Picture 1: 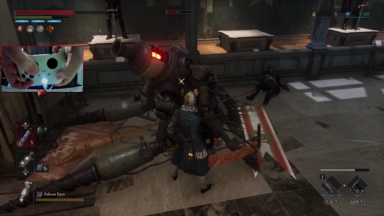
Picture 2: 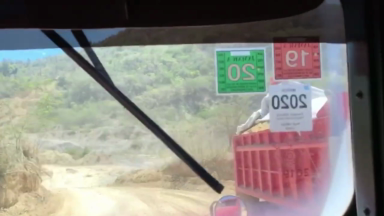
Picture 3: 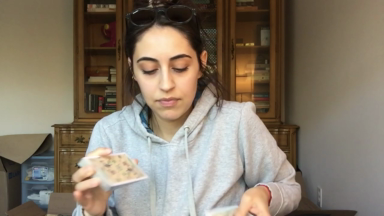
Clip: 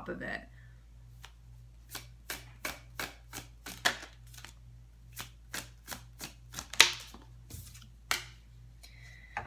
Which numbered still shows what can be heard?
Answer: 3